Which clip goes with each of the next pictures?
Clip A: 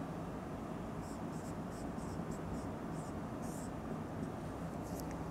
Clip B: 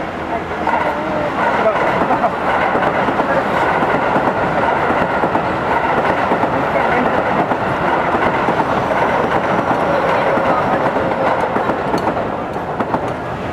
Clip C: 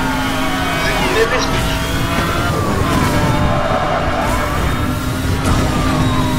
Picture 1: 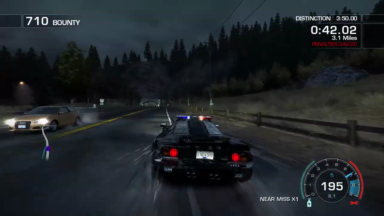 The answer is C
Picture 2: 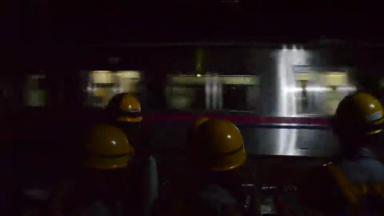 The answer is B